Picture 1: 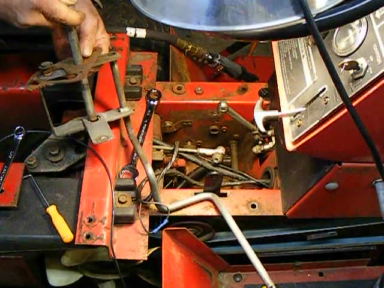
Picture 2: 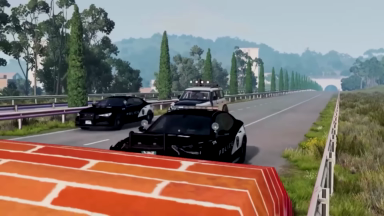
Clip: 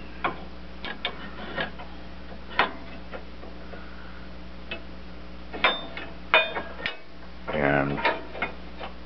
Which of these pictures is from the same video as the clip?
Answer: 1